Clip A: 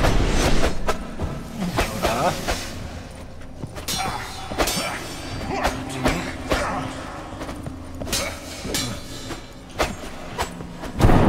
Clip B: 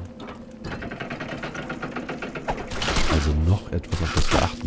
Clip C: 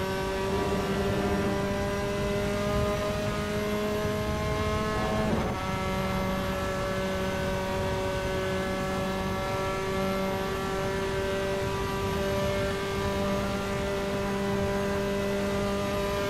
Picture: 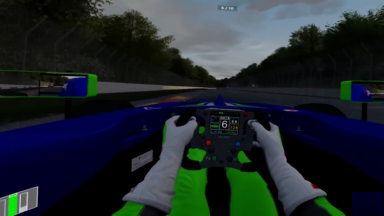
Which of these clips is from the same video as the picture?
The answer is C